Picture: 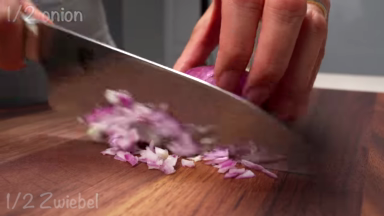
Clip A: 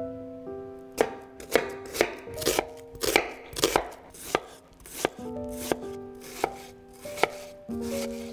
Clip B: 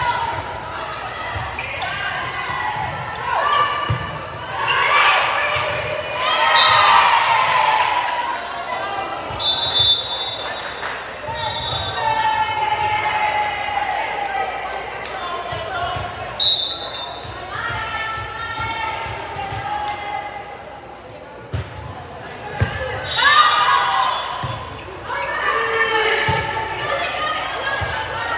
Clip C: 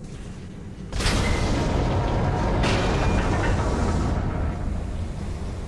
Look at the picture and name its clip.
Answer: A